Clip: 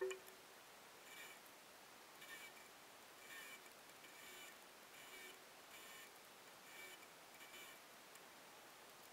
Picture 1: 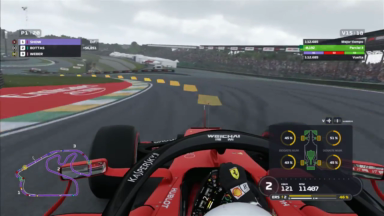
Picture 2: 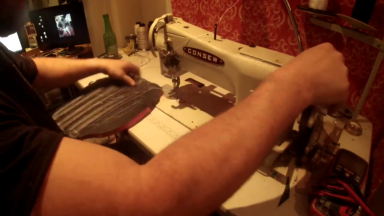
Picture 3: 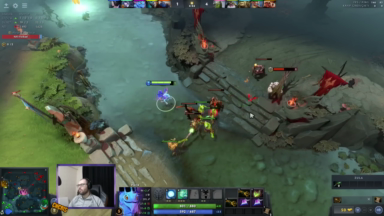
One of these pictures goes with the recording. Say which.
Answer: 2